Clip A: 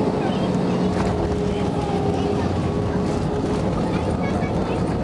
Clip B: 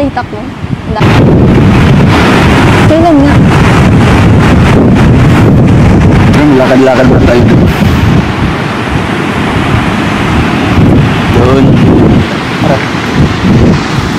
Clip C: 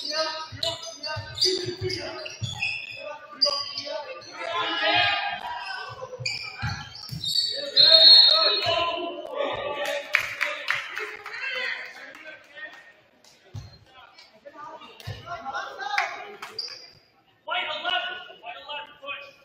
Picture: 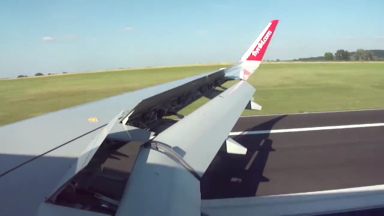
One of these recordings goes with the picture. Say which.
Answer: A